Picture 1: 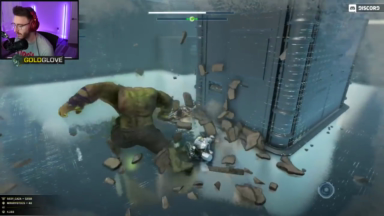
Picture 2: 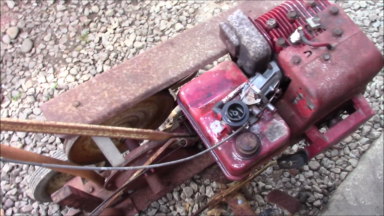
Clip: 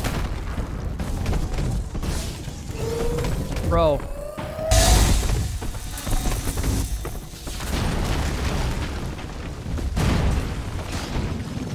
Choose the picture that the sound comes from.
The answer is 1